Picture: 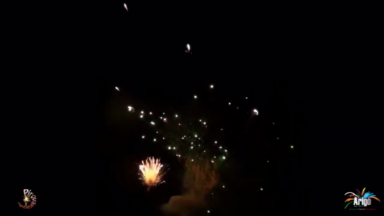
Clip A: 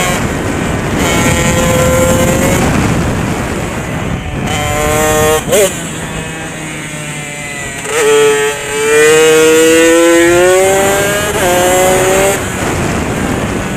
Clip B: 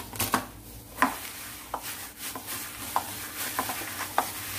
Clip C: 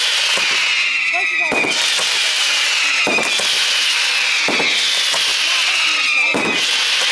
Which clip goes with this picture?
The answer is C